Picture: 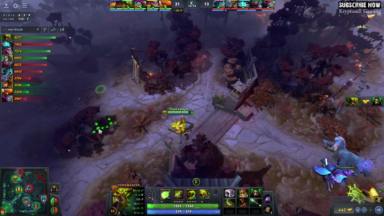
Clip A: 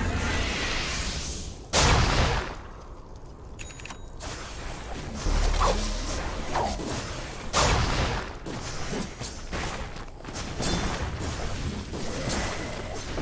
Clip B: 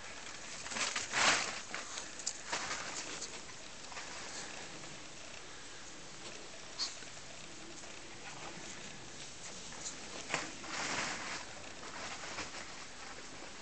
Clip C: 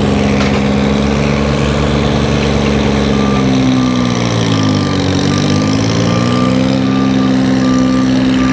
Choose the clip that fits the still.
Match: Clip A